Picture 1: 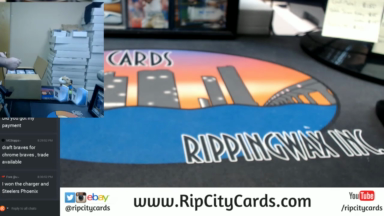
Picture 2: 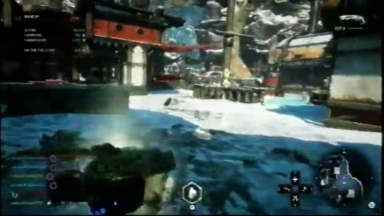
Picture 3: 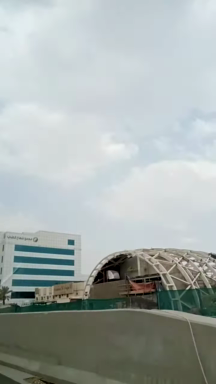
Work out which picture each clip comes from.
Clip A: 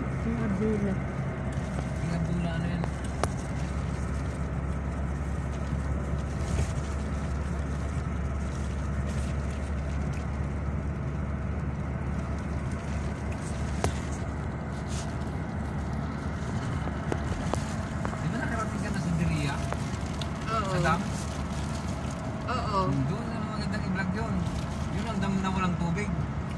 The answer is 3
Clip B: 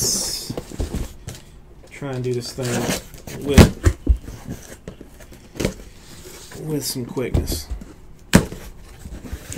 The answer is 1